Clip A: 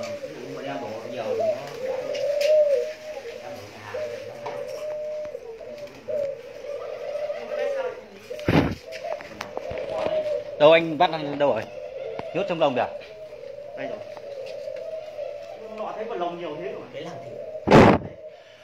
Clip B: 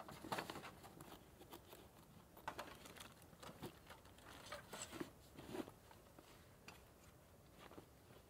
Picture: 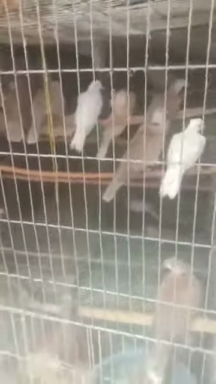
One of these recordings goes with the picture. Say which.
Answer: A